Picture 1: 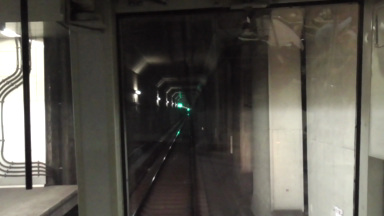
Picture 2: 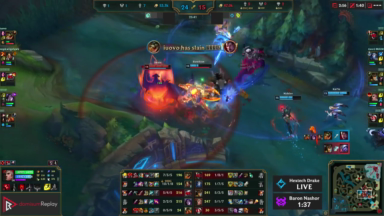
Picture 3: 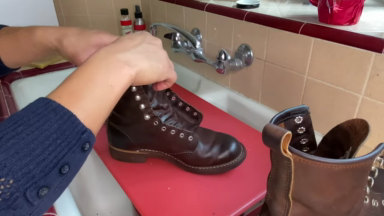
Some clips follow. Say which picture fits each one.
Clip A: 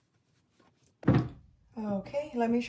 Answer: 3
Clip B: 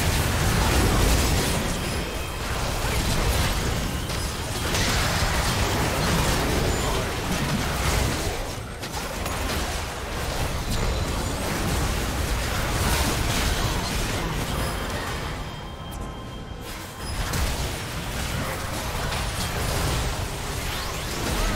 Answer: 2